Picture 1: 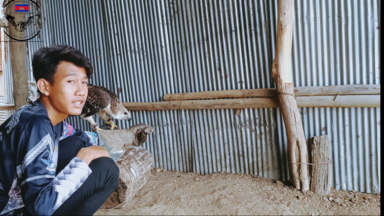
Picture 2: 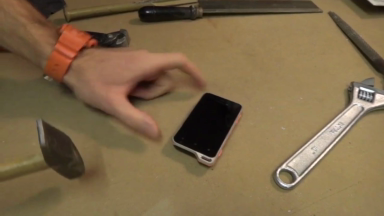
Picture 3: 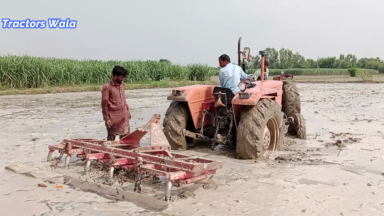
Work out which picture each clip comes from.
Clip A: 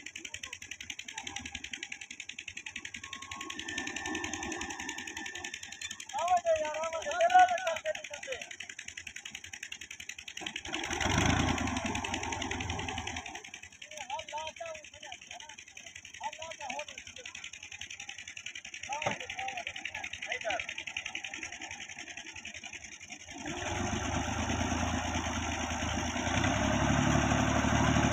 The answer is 3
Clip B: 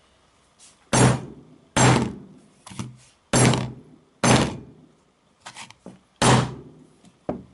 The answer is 2